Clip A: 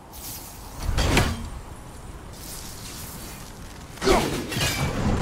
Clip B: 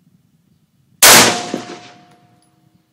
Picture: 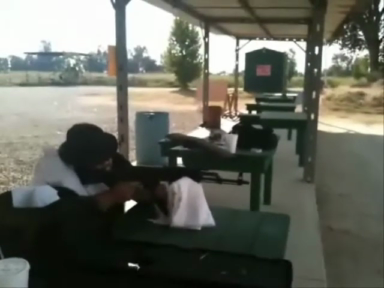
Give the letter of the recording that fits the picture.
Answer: B